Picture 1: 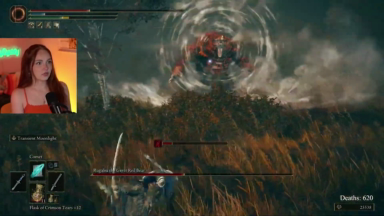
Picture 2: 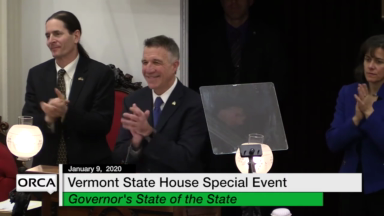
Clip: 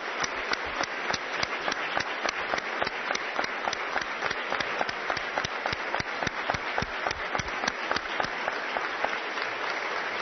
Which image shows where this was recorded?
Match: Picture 2